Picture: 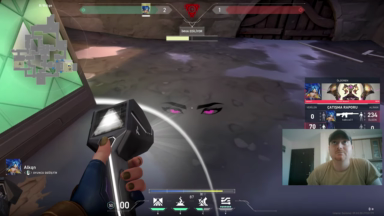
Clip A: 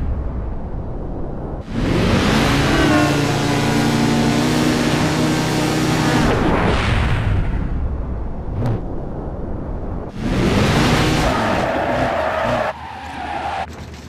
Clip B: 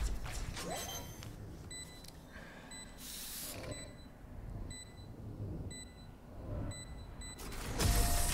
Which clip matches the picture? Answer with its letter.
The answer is B